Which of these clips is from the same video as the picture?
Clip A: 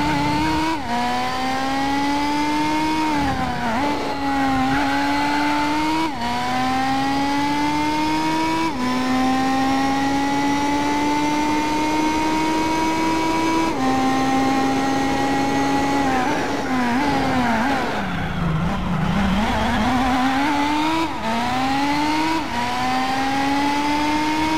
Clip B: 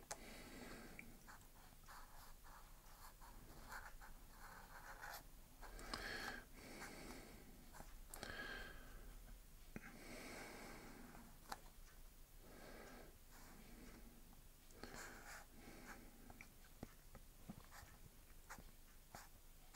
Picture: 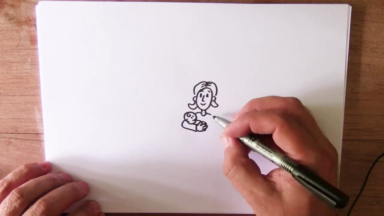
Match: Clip B